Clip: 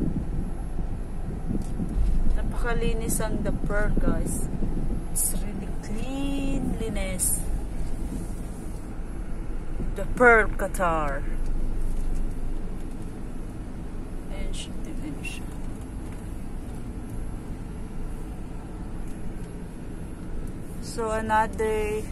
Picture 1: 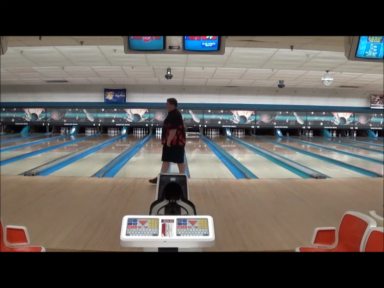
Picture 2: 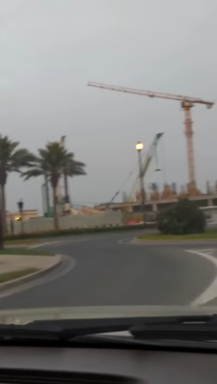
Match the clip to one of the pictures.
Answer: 2